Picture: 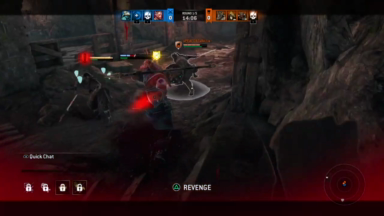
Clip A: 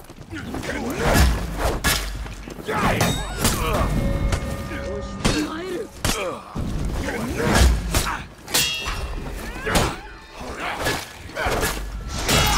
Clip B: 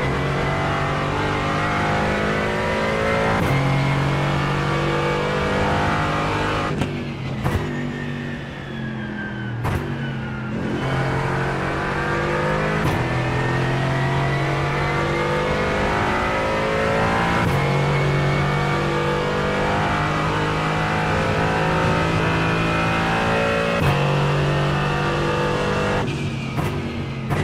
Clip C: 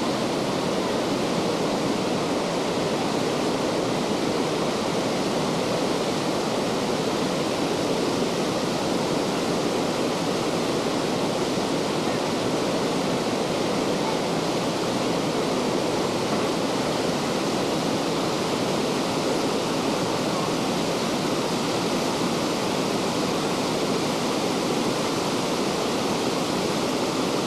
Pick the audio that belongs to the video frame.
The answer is A